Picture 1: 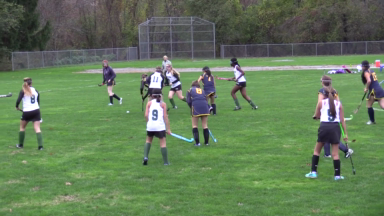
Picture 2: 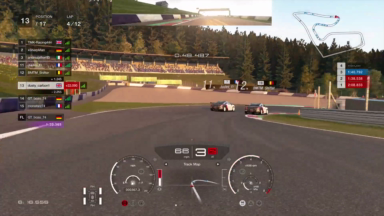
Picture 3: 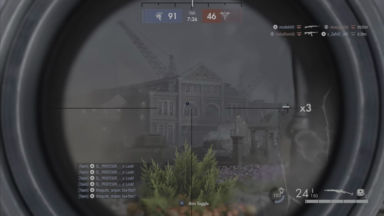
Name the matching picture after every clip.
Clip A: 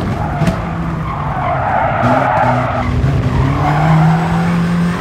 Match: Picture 2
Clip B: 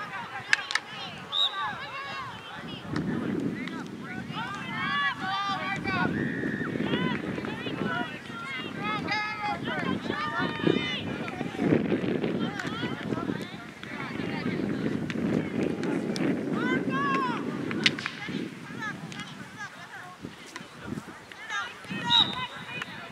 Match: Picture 1